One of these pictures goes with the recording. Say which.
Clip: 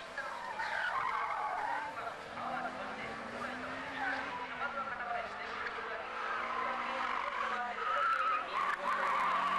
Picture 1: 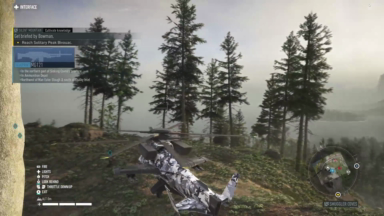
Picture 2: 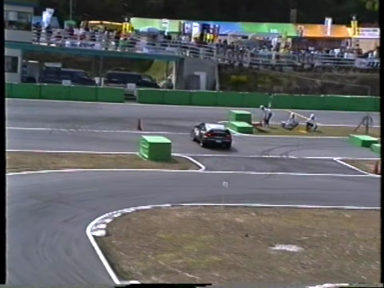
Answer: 2